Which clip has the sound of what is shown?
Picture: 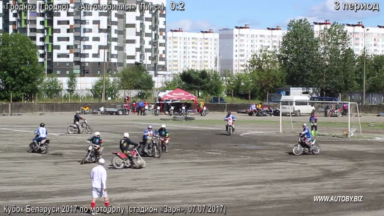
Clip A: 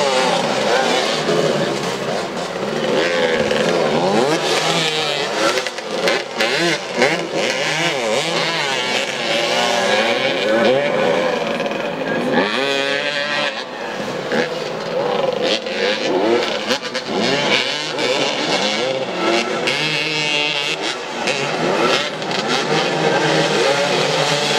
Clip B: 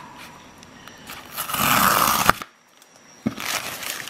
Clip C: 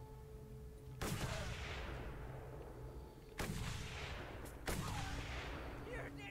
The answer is A